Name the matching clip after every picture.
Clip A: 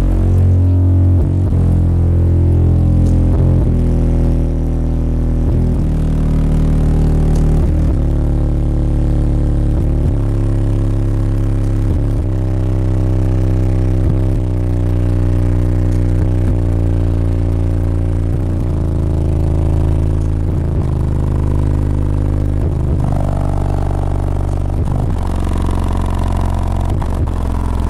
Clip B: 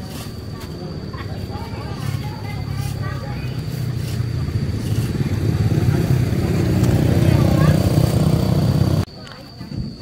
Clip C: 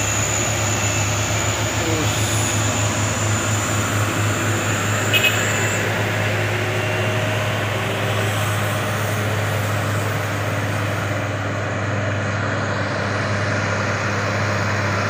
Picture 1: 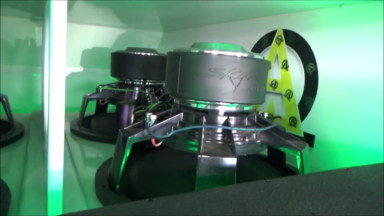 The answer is A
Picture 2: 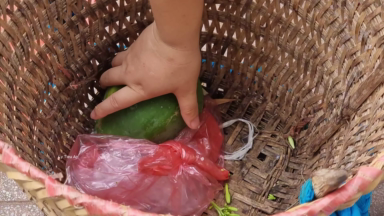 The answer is B